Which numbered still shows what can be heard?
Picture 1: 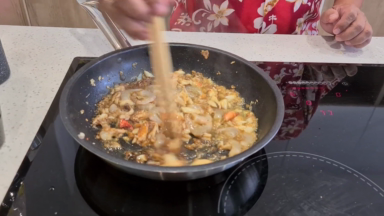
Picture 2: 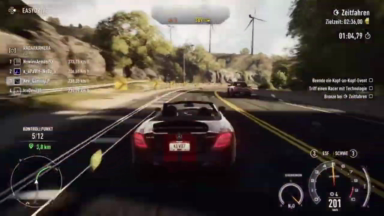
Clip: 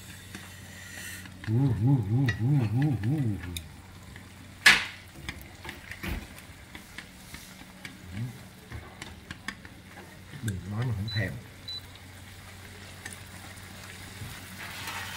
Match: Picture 1